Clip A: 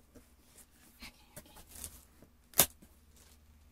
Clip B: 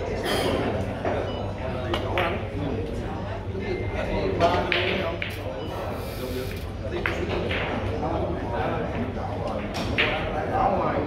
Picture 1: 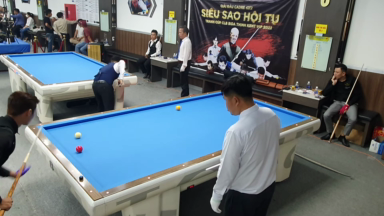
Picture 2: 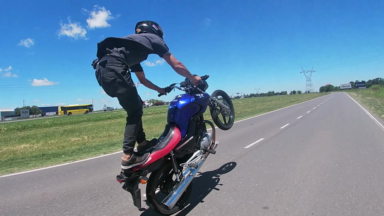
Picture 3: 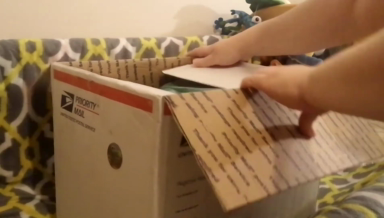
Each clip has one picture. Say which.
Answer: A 3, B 1